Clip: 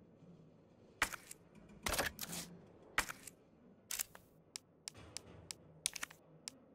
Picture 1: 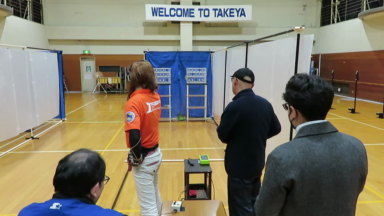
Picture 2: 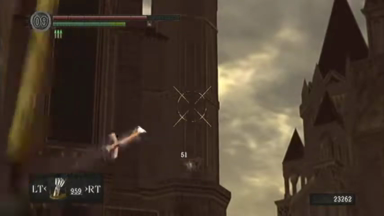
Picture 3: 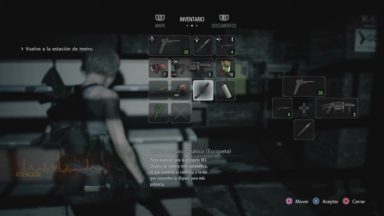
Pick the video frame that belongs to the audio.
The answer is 3